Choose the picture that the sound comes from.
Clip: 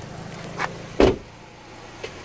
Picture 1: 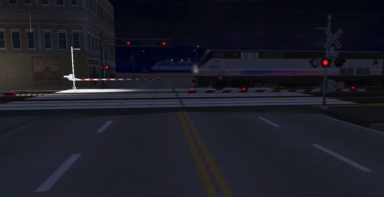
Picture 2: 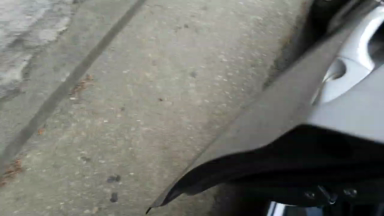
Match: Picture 2